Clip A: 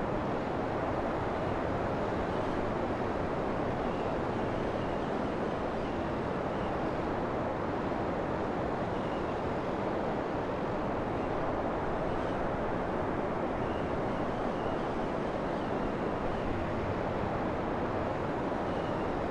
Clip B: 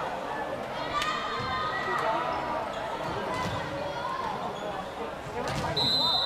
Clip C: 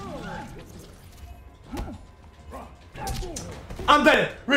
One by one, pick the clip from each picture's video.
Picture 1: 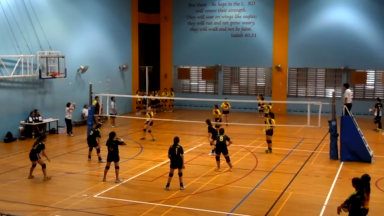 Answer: B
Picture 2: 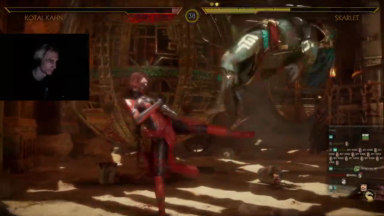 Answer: C